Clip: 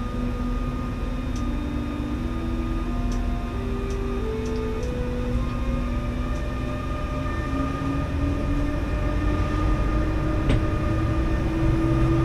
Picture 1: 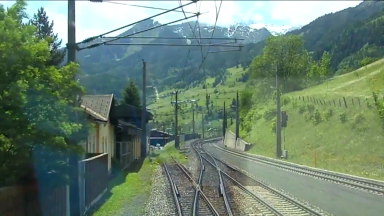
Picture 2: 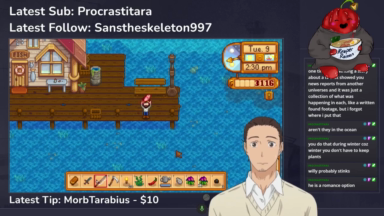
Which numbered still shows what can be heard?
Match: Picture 1